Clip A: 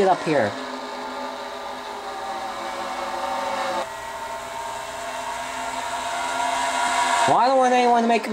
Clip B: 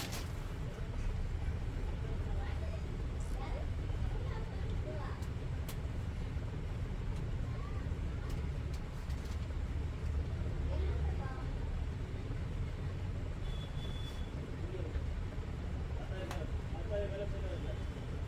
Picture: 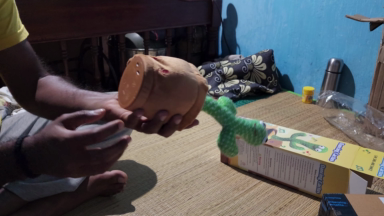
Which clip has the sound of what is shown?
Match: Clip B